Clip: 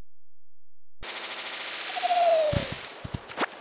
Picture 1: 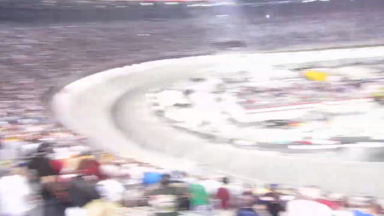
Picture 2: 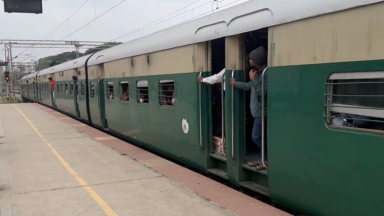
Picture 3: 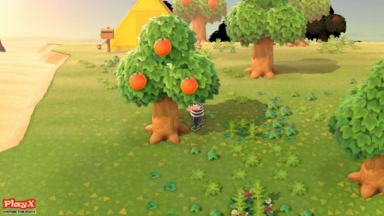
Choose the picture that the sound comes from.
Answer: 3